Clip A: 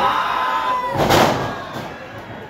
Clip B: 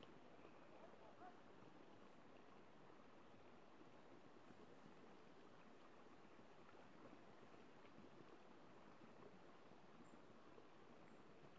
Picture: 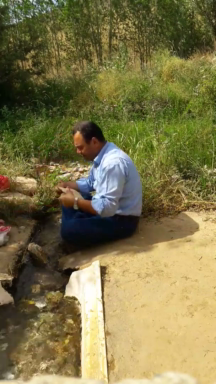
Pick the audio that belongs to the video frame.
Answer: B